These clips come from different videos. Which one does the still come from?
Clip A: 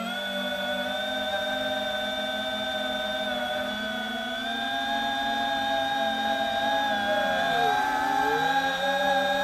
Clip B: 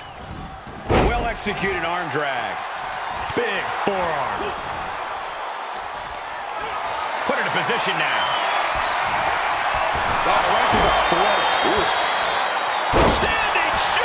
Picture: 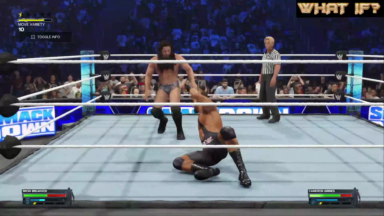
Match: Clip B